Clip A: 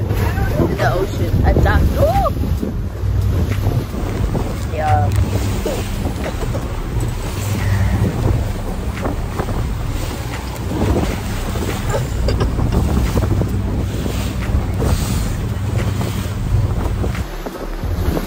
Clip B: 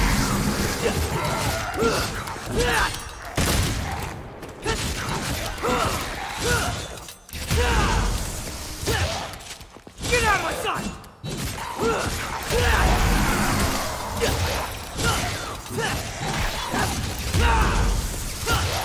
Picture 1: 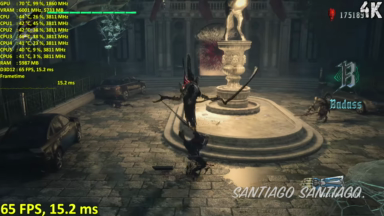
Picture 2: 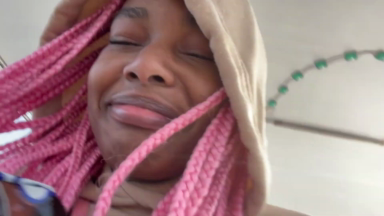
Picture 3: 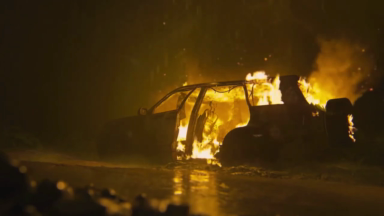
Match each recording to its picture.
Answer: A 2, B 1